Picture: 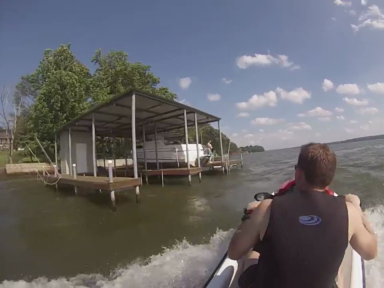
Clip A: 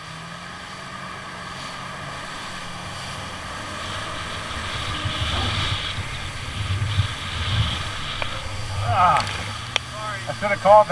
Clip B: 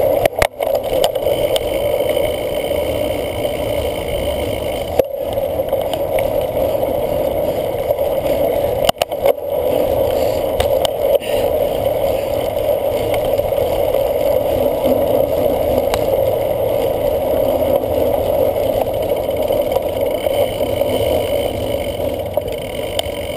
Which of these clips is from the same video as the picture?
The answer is A